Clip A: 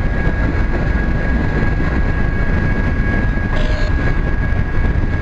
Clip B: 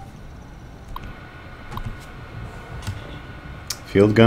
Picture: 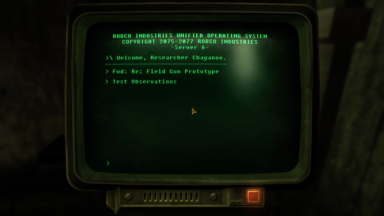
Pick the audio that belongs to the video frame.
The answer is B